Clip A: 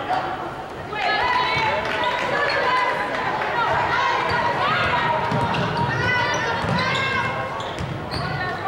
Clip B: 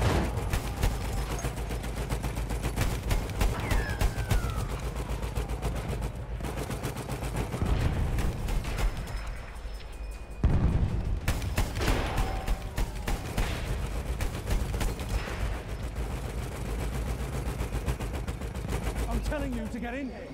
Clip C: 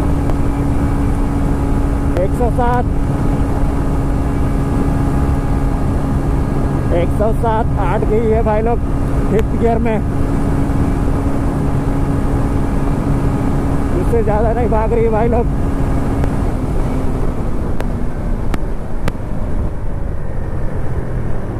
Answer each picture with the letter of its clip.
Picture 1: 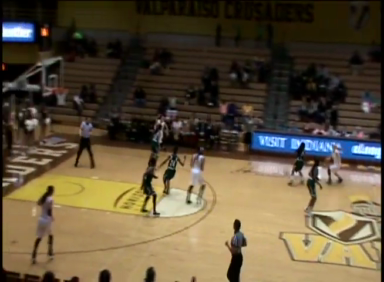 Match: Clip A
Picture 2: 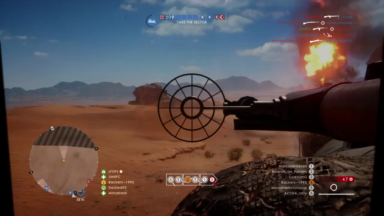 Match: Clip B